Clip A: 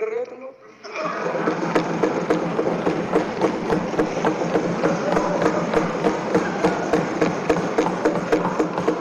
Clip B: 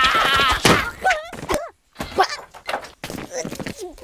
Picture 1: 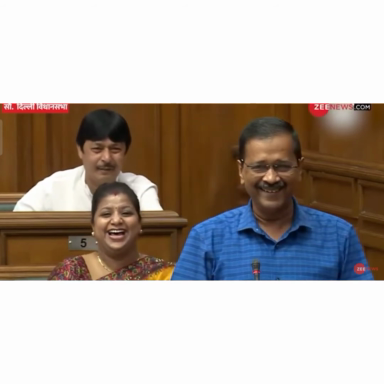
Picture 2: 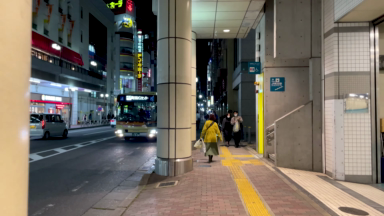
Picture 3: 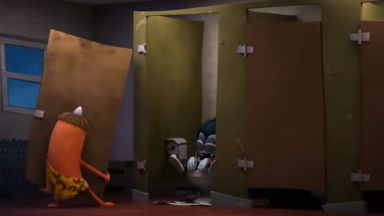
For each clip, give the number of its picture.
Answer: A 1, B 3